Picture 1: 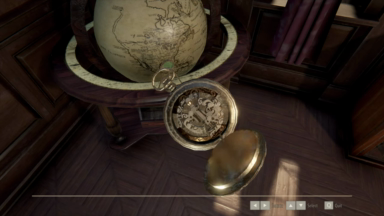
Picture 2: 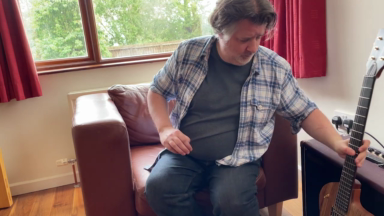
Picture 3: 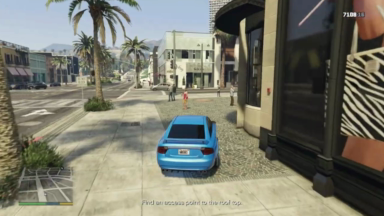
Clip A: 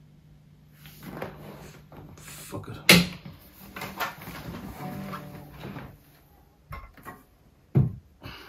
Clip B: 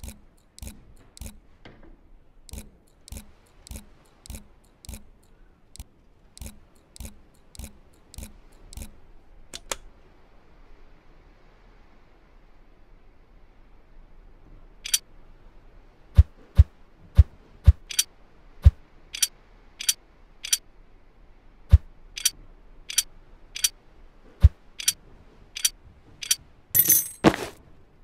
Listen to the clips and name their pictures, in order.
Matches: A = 2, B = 1